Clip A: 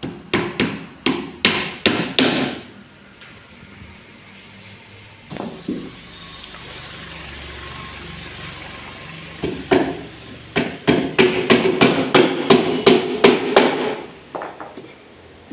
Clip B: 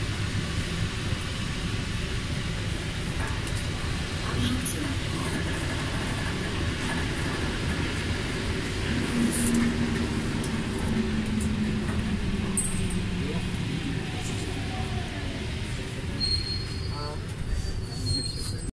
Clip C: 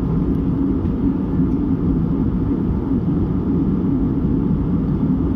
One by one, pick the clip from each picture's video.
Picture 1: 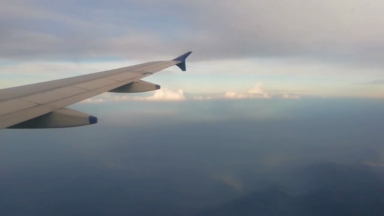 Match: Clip C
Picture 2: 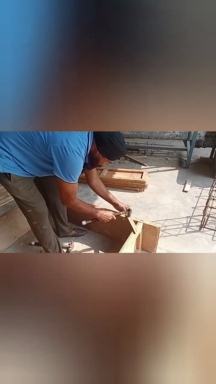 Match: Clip A